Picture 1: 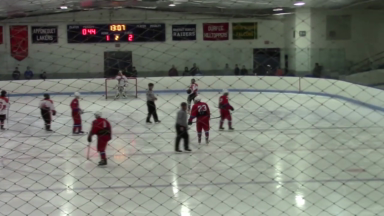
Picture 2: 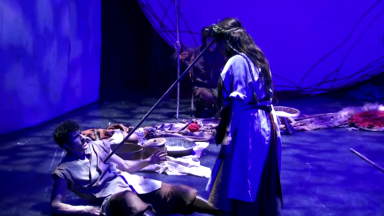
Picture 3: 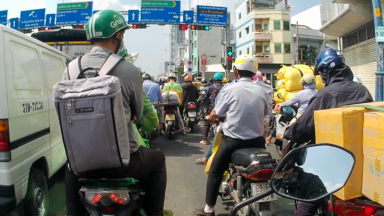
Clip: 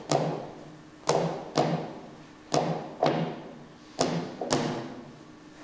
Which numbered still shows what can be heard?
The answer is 2